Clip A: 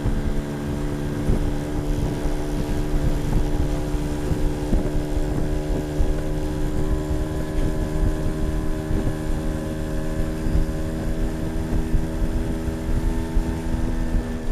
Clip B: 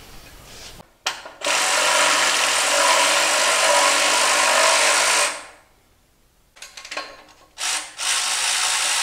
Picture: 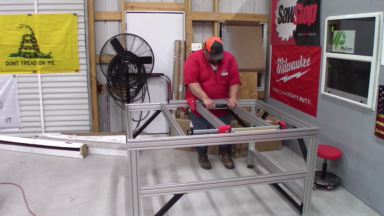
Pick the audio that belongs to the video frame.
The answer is B